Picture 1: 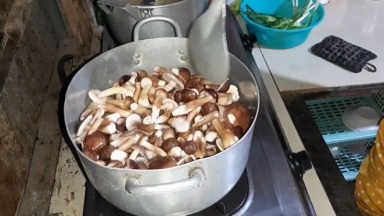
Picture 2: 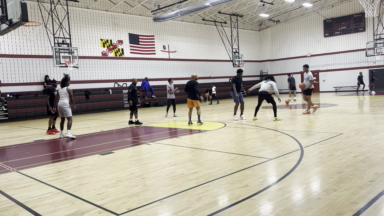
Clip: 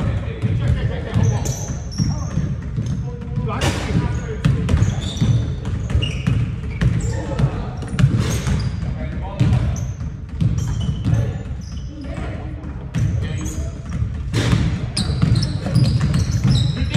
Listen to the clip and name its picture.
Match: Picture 2